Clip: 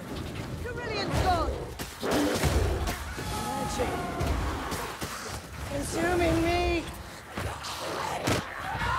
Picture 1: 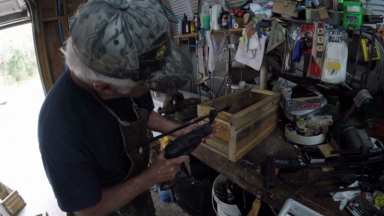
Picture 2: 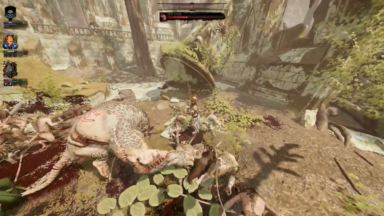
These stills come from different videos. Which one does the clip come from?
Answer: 2